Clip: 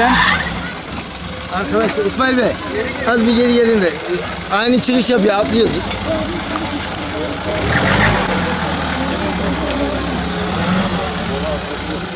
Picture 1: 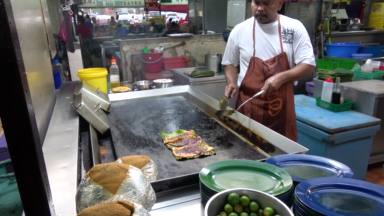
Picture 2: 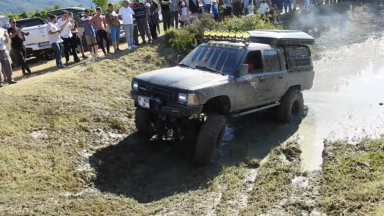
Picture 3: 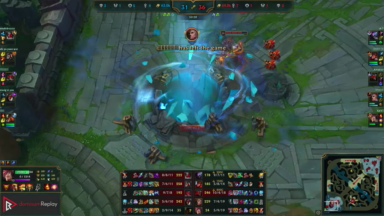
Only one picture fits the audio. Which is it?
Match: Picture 2